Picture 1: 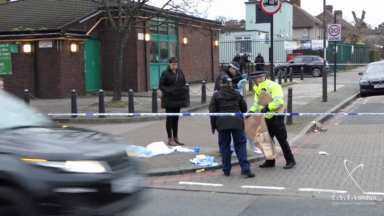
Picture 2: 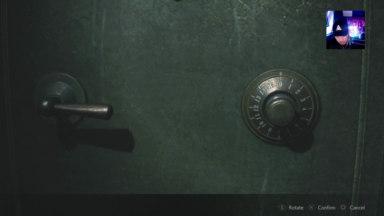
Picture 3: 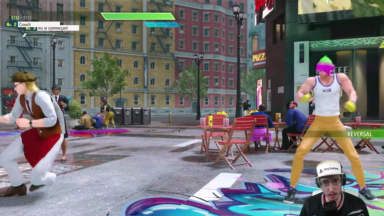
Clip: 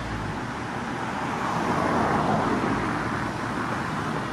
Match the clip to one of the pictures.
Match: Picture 1